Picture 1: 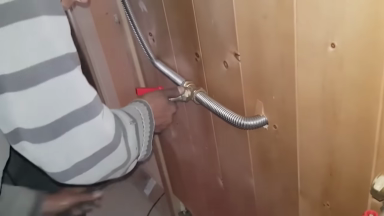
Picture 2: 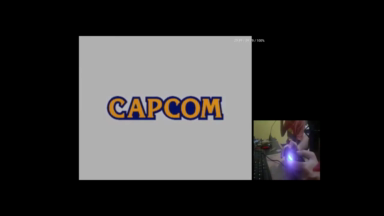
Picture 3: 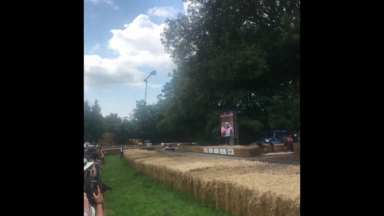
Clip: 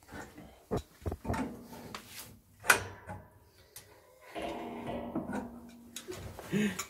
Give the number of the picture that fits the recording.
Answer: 1